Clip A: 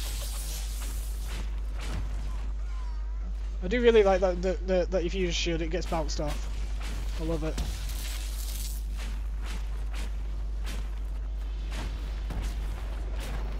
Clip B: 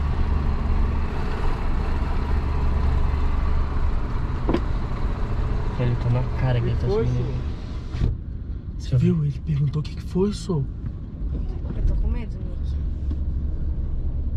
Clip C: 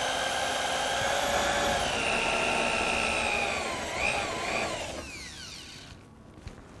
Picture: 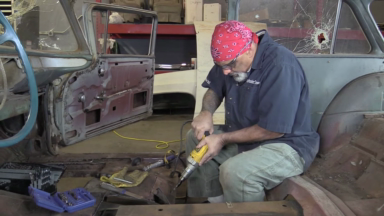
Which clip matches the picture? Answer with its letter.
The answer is C